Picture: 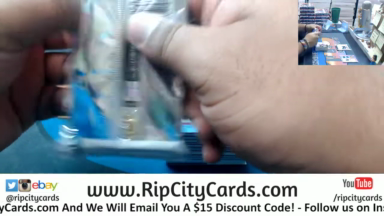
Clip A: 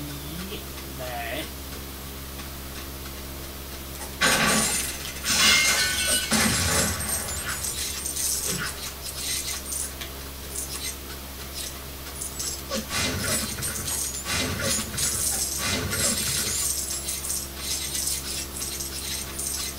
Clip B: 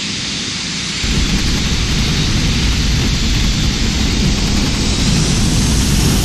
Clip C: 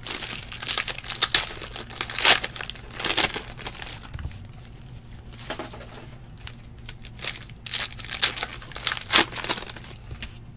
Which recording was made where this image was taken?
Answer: C